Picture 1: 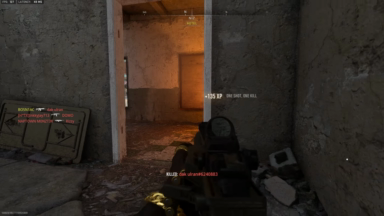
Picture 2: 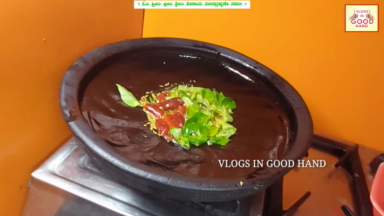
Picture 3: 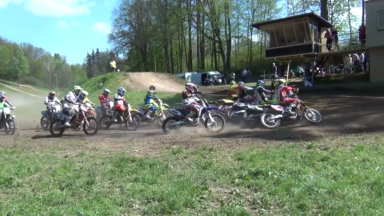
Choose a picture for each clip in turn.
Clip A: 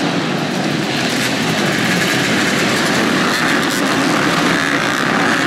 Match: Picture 3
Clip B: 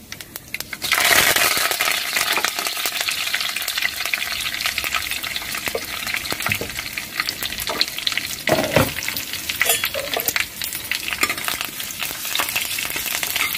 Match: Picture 2